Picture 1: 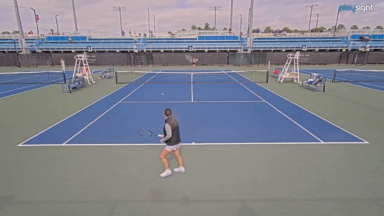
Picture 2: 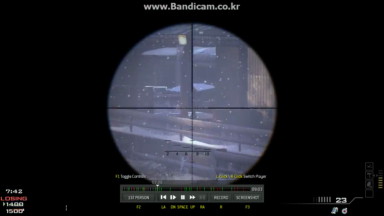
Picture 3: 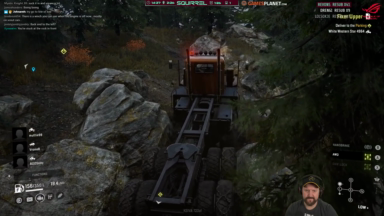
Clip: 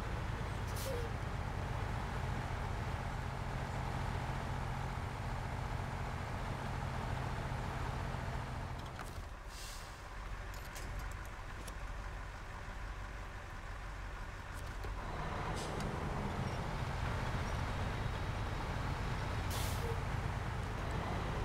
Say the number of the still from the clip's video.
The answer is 3